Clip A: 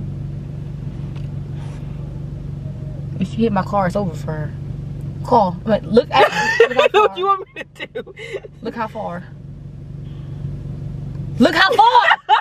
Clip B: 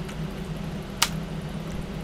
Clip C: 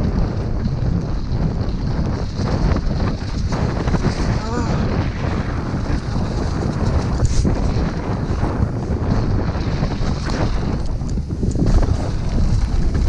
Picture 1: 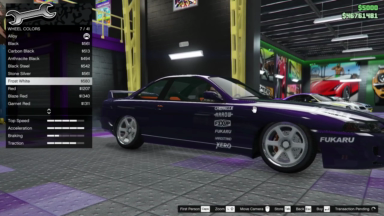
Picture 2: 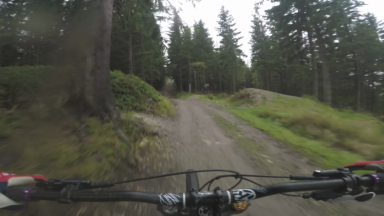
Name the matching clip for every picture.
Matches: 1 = B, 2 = C